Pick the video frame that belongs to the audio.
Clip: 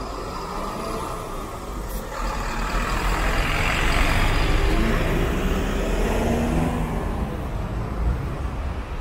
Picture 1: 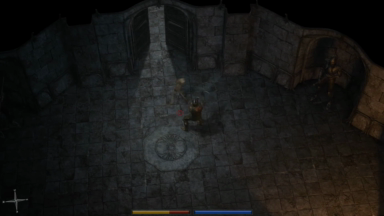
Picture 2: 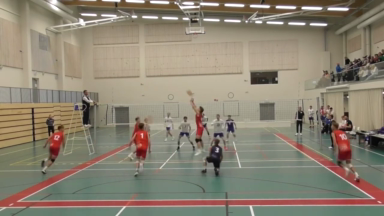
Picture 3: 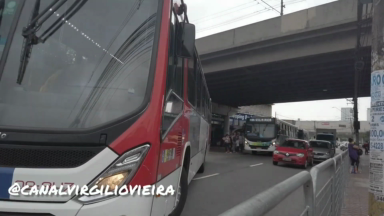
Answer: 3